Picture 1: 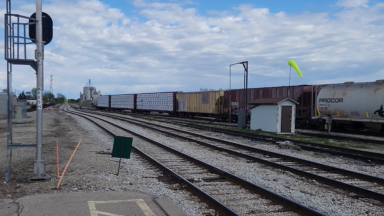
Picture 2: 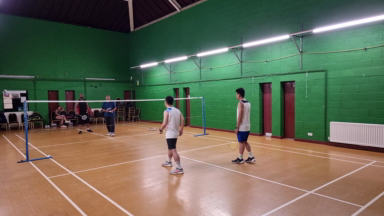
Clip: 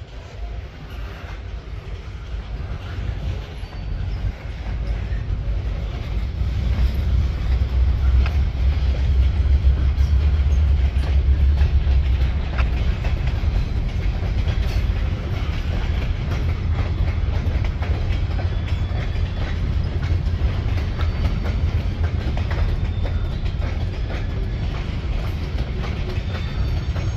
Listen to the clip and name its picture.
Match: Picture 1